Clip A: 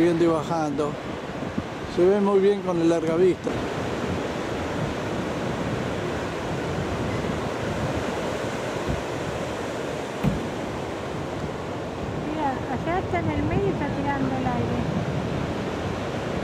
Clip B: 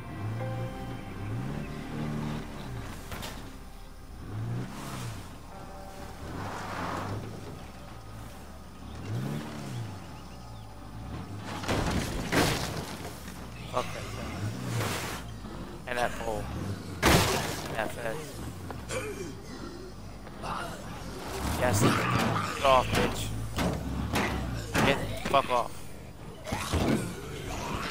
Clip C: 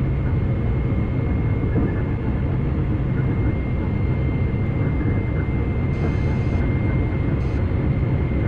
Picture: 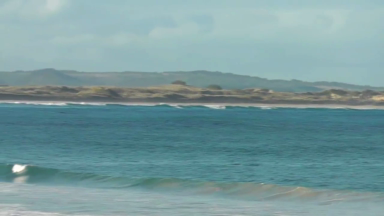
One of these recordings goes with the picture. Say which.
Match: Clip A